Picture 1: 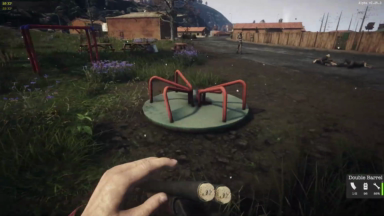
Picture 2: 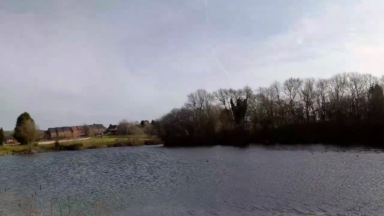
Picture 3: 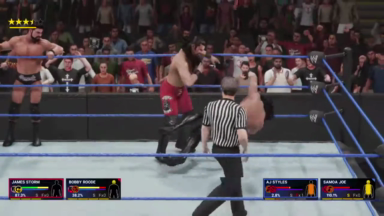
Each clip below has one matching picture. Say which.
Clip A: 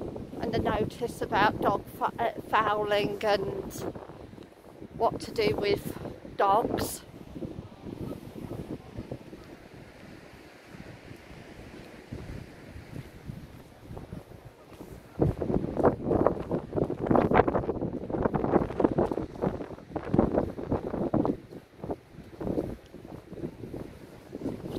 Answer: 2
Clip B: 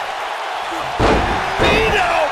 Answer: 3